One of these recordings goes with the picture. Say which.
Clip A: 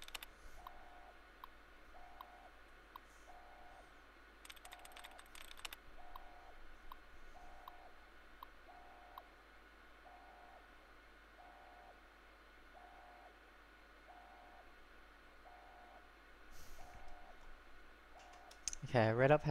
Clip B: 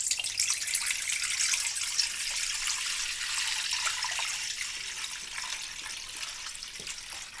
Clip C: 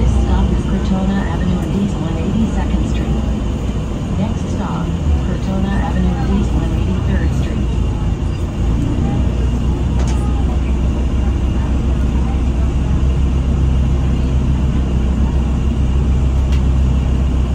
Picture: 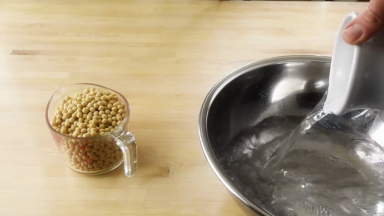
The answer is B